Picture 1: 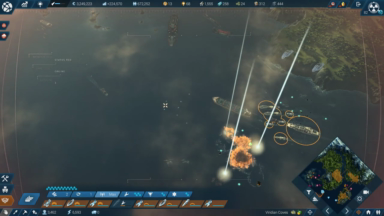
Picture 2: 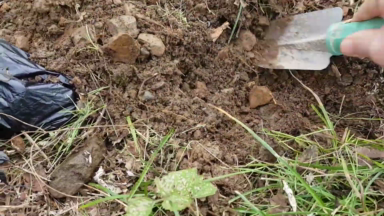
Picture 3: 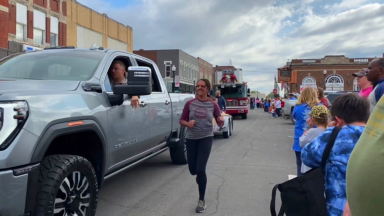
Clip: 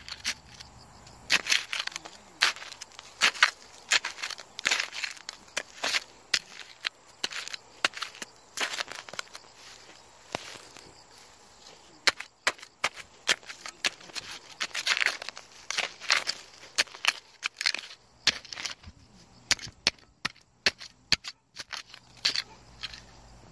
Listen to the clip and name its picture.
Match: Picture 2